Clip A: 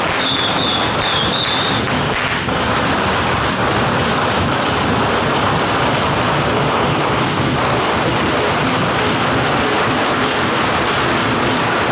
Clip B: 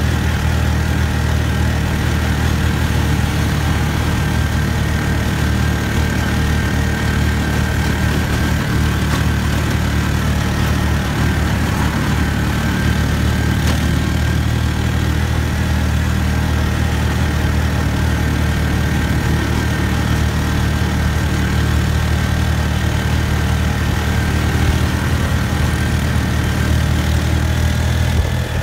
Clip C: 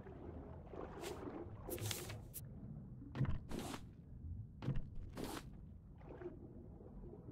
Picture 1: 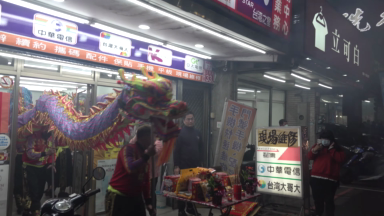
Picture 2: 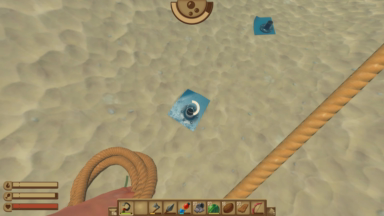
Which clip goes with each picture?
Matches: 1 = A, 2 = C